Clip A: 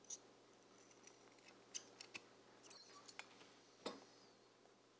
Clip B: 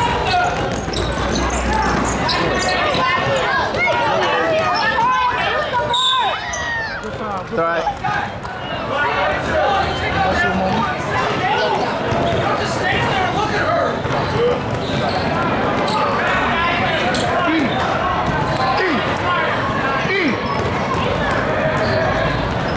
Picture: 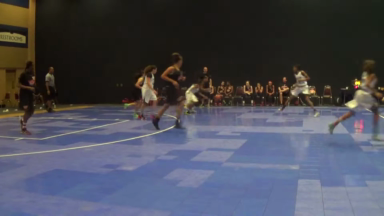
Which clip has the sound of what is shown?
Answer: B